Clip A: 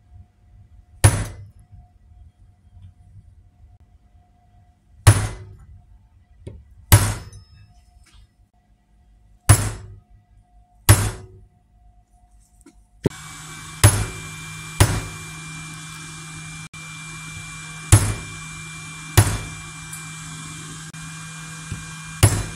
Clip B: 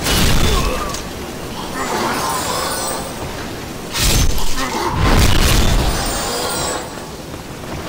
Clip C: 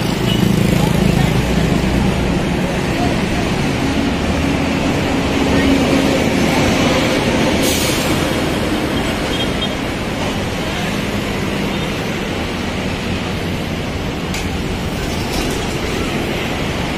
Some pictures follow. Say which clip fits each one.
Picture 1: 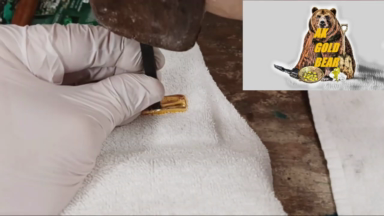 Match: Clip A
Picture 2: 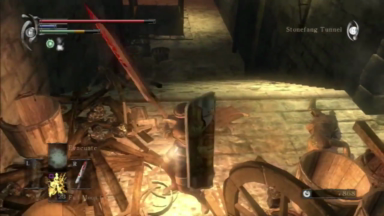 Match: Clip B